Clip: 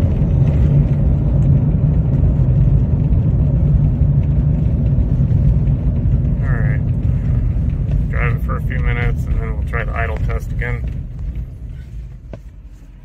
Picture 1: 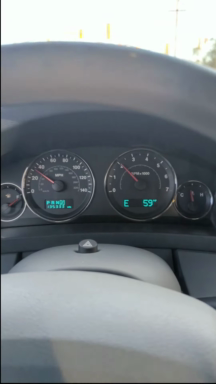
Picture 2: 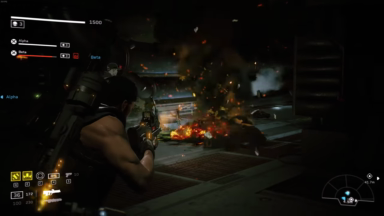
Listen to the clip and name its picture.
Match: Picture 1